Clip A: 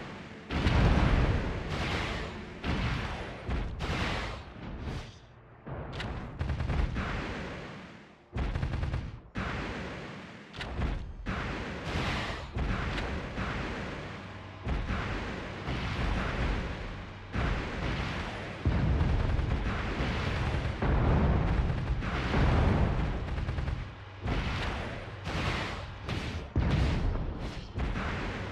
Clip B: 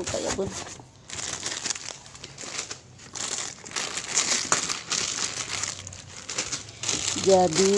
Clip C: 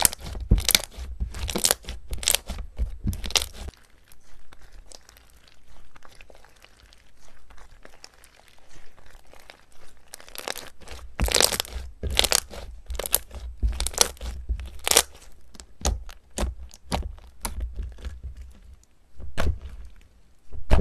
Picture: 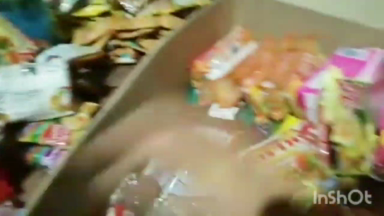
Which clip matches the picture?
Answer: B